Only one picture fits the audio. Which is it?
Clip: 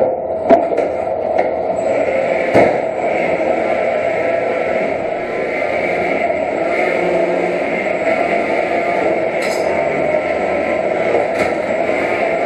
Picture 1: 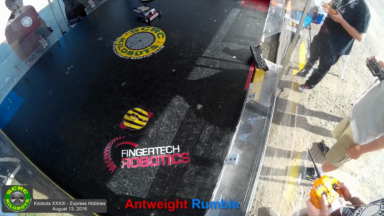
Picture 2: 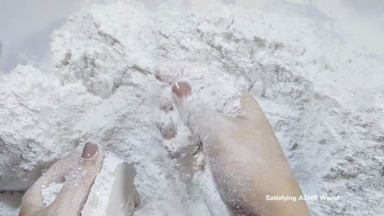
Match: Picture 1